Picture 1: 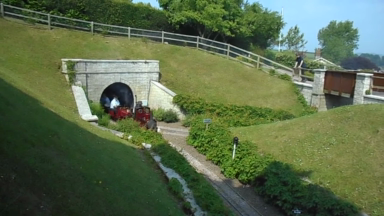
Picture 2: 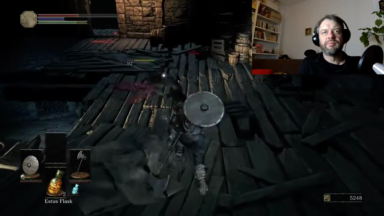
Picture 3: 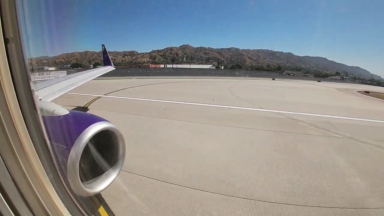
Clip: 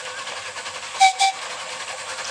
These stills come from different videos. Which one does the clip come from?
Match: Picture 1